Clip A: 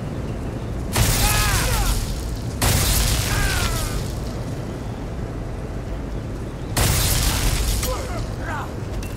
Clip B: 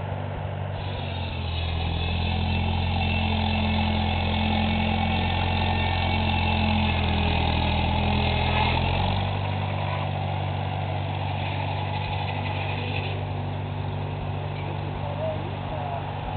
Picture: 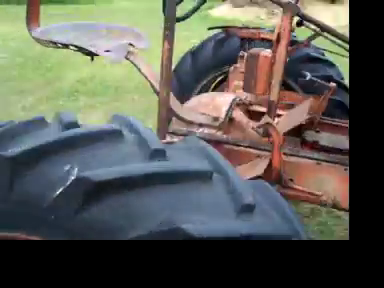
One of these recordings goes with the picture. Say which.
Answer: B